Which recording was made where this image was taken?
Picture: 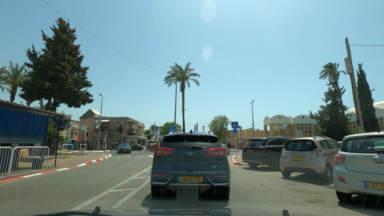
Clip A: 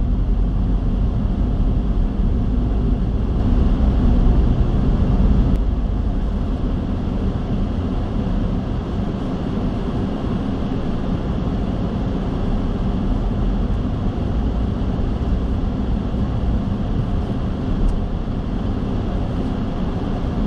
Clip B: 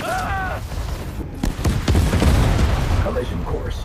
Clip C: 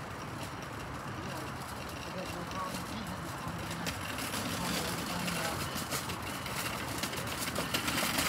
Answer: A